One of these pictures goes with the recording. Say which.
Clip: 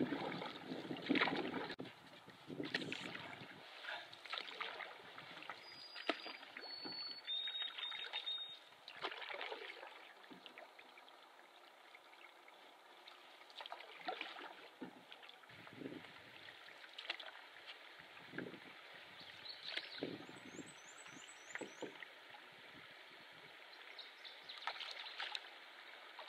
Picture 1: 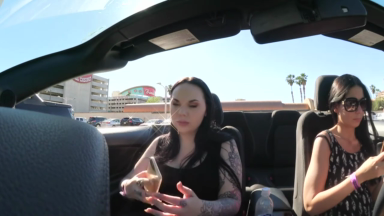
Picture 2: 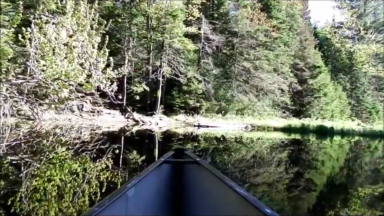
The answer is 2